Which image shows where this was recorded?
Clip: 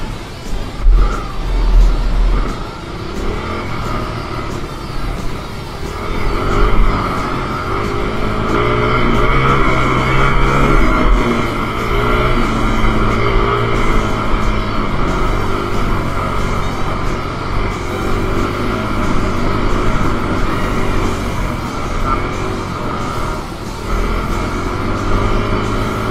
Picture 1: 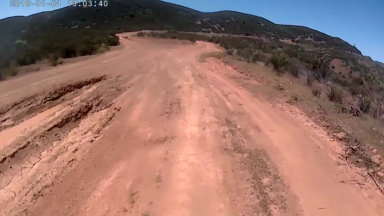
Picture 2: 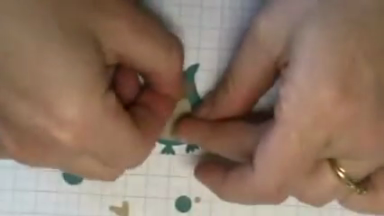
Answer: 1